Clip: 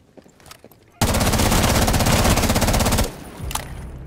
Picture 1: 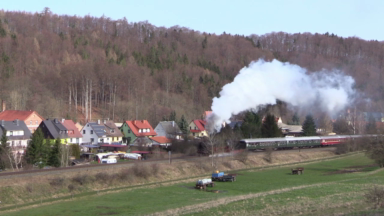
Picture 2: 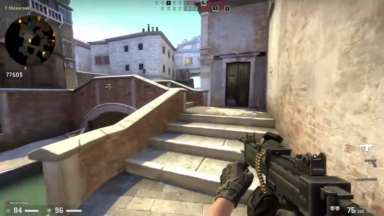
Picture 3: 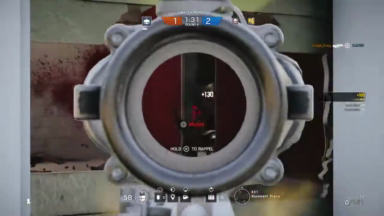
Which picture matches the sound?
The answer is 3